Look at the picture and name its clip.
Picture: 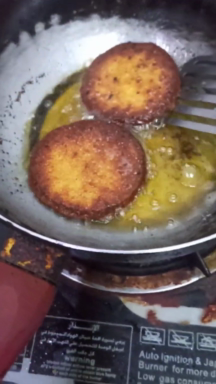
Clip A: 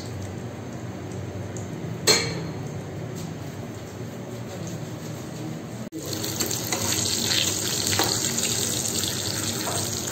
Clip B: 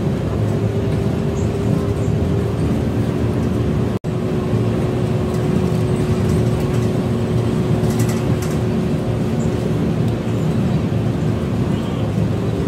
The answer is A